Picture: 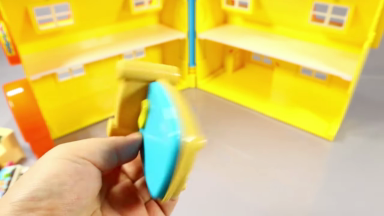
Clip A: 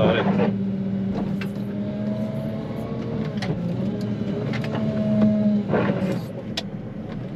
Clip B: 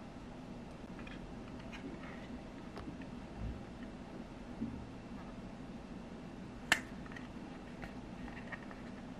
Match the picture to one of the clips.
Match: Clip B